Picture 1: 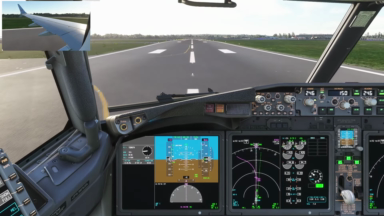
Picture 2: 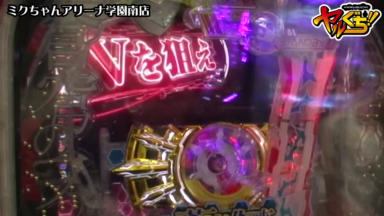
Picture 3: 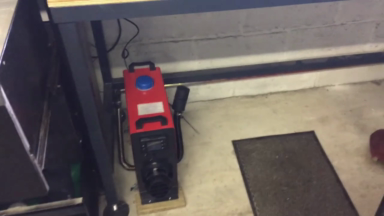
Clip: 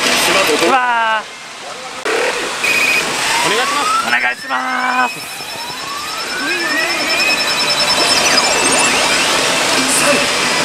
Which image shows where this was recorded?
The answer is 2